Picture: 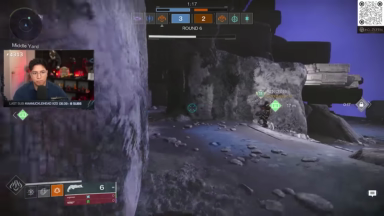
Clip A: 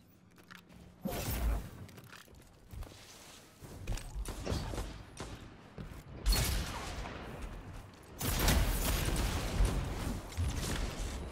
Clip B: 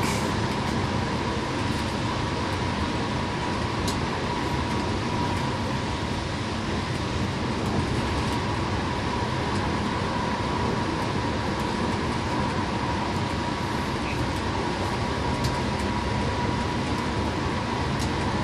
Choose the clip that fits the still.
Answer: A